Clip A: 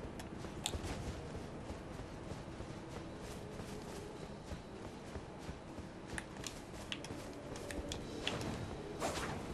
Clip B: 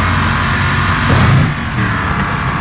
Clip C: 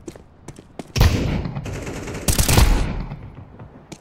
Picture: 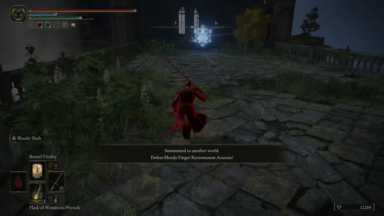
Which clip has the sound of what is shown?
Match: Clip A